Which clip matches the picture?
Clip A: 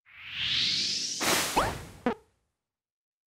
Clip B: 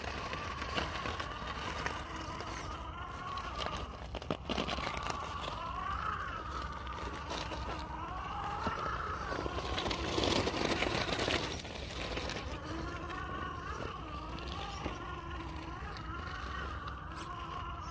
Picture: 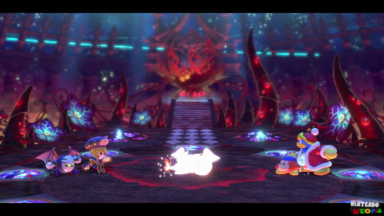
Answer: A